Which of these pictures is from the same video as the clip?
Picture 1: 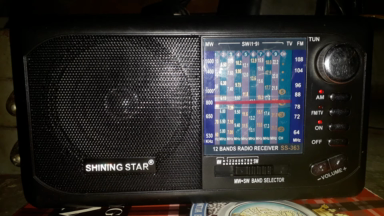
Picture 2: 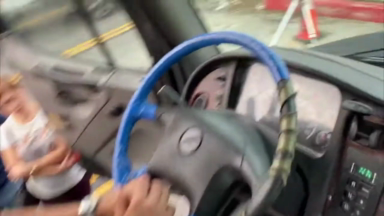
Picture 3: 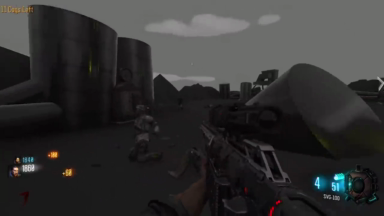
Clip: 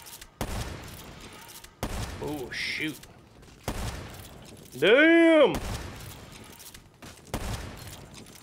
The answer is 3